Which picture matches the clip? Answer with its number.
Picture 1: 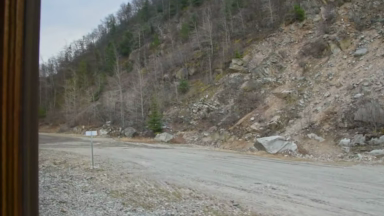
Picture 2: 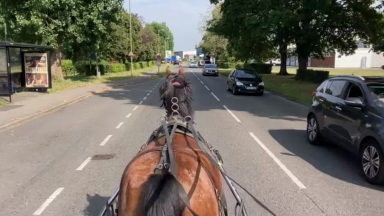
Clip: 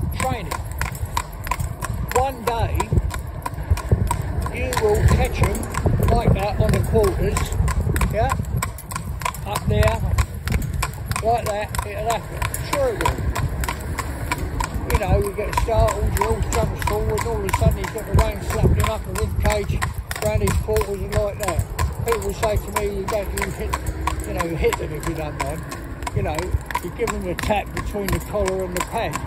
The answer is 2